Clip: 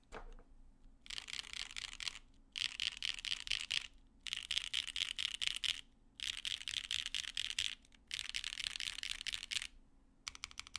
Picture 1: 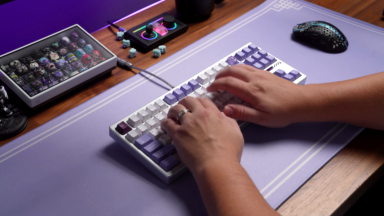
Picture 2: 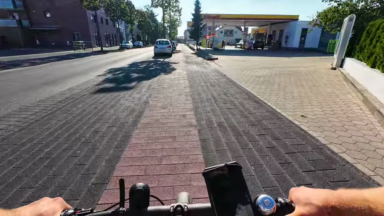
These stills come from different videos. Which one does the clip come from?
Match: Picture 1